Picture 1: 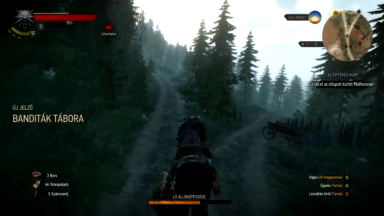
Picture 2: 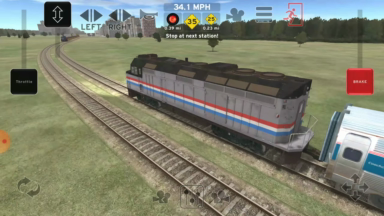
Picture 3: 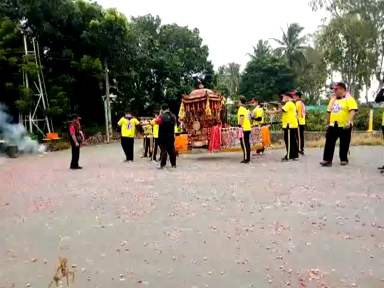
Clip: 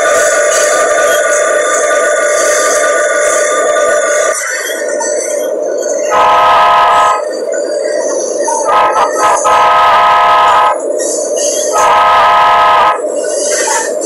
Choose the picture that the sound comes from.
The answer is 2